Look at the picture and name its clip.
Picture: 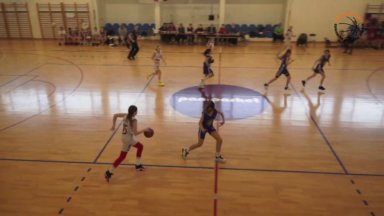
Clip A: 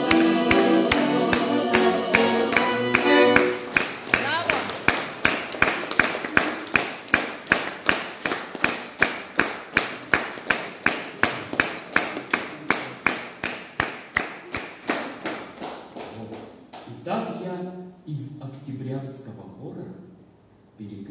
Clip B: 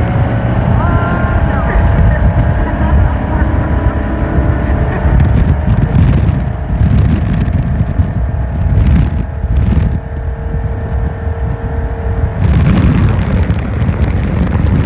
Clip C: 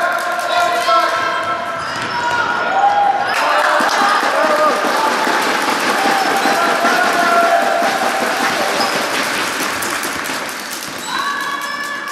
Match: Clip C